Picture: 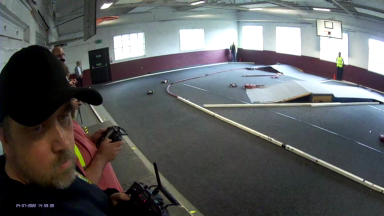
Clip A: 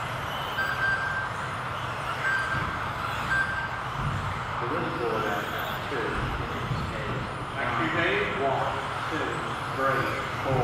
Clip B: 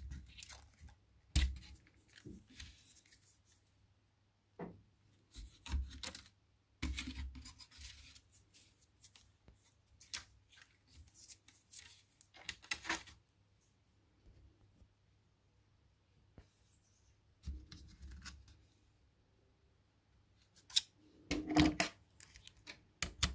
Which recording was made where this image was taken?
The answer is A